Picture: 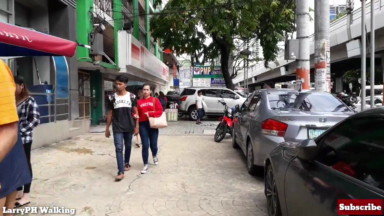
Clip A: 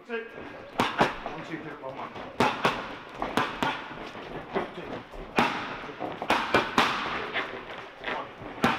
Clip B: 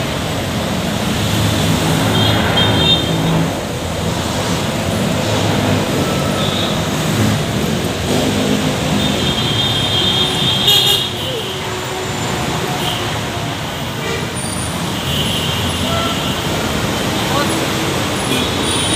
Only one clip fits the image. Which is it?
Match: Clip B